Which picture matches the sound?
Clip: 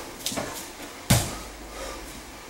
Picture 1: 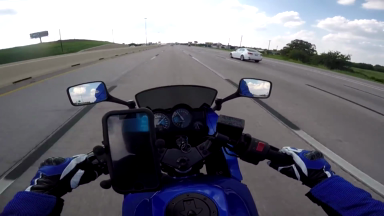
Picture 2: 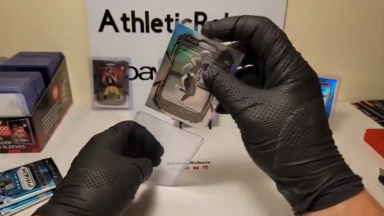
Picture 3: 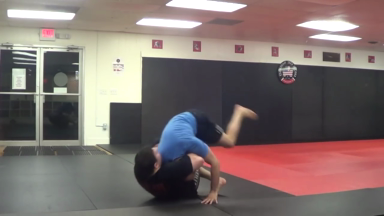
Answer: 3